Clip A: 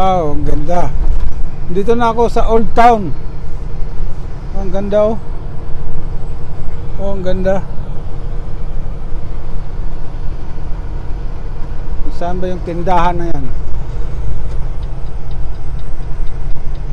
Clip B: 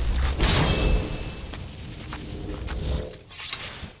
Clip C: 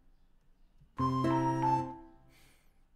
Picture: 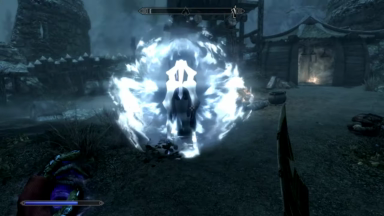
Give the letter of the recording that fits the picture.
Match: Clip B